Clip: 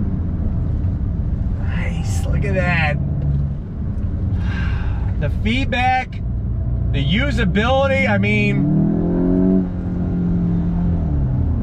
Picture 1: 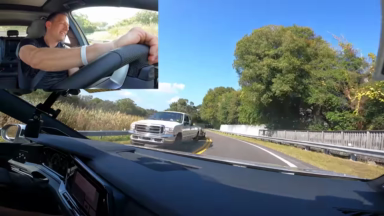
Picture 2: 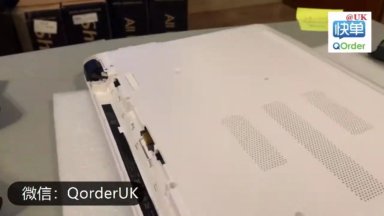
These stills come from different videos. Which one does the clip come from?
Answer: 1